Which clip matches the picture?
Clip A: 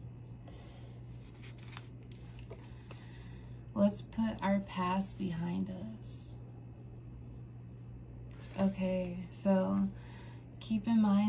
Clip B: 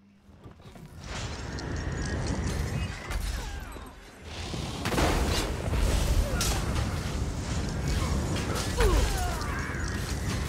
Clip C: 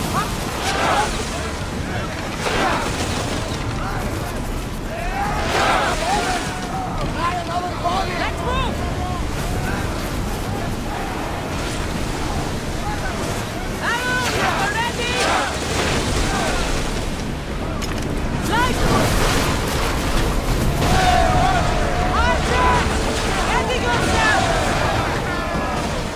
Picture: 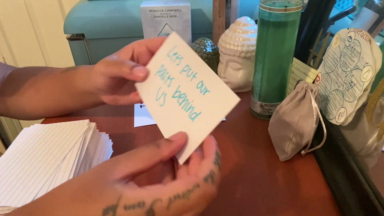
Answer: A